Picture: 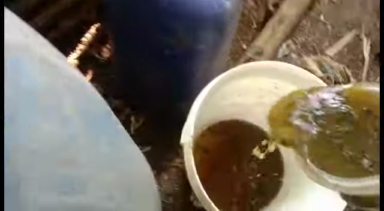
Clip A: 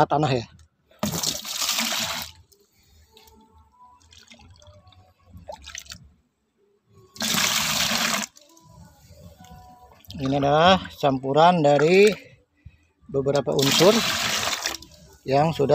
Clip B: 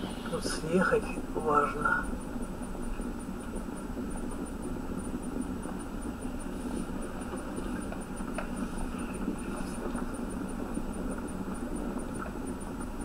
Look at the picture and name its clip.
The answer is A